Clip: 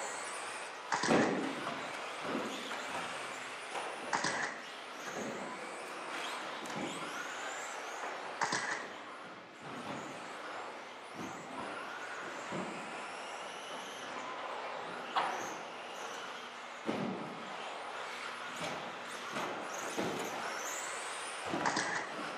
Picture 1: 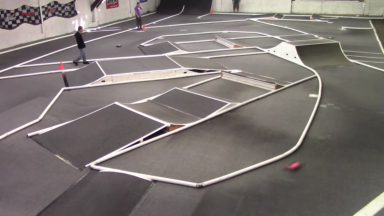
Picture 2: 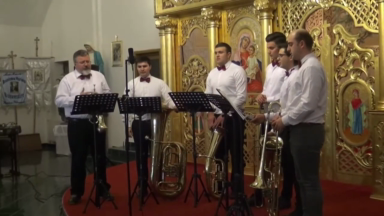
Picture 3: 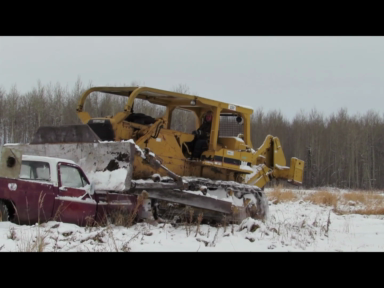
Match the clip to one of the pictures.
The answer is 1